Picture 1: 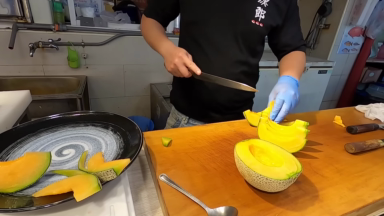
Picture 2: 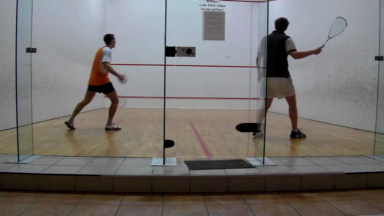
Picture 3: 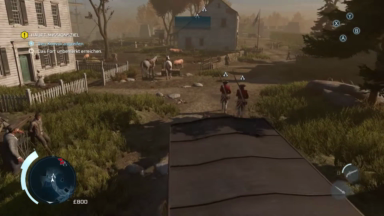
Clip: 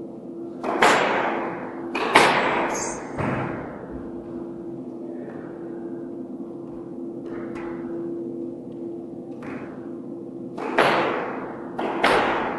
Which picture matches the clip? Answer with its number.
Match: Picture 2